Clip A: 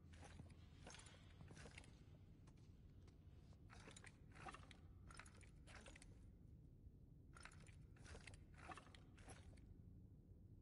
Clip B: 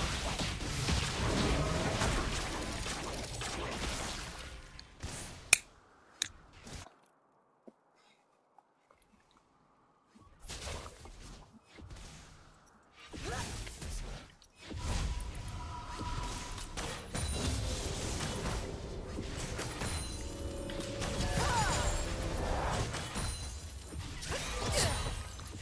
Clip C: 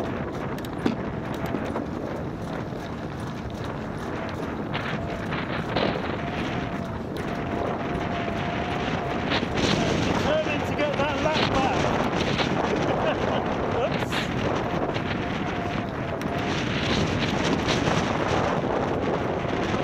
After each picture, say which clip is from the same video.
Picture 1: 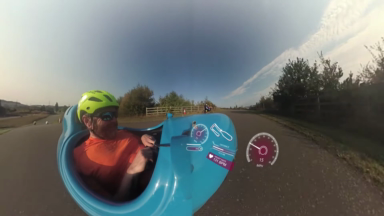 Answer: C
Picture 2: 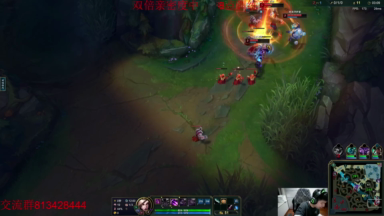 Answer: B